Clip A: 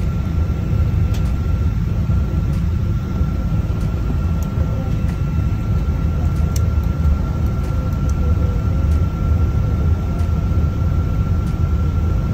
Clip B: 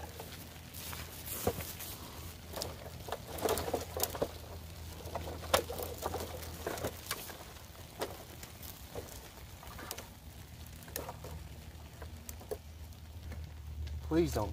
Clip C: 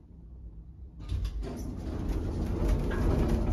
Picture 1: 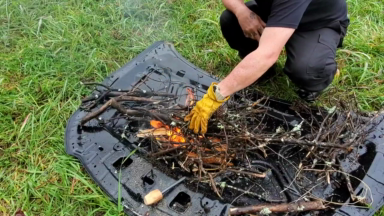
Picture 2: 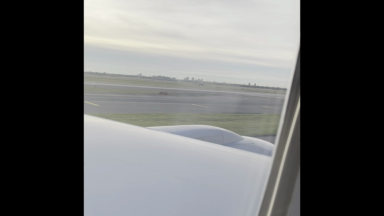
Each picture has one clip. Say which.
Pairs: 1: B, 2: A